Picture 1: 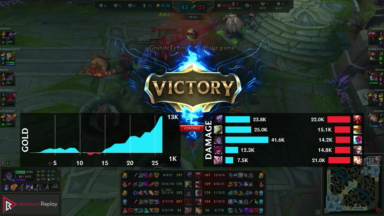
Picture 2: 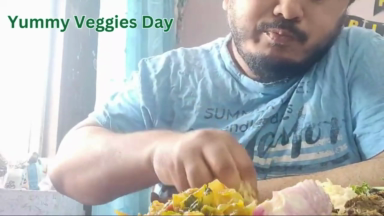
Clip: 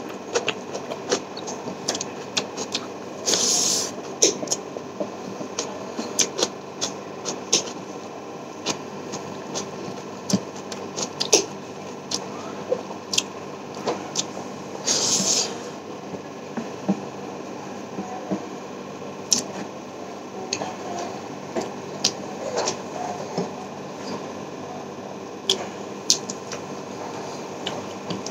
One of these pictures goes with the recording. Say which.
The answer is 2